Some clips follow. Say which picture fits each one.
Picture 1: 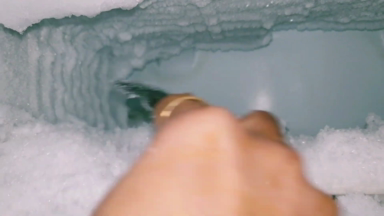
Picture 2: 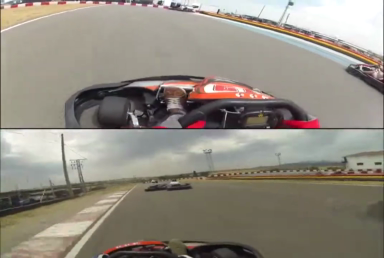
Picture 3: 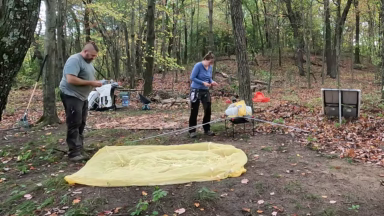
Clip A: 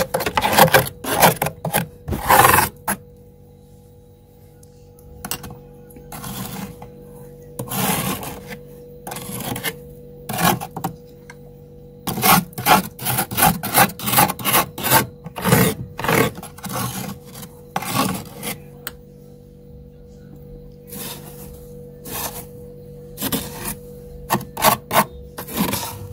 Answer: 1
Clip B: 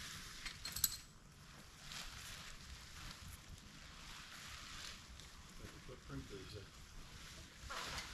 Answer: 3